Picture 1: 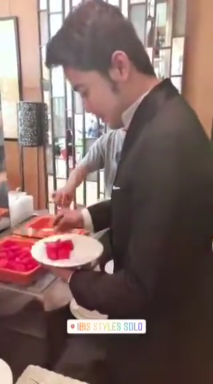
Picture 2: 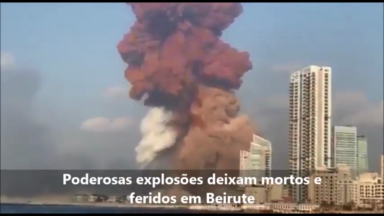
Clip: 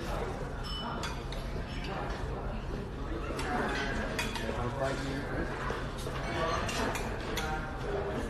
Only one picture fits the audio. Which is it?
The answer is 1